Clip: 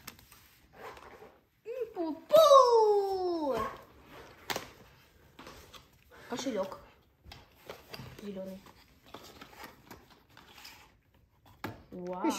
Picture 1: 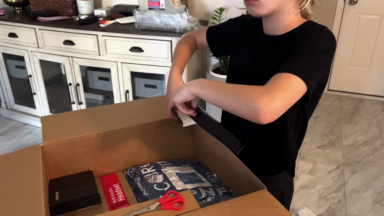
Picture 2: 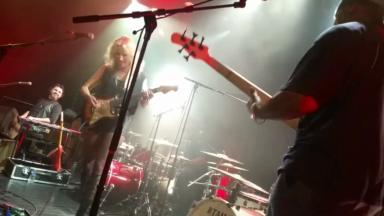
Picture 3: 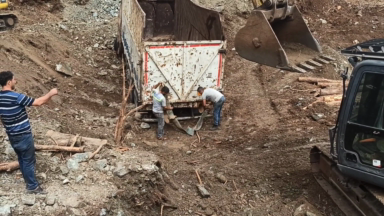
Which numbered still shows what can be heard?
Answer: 1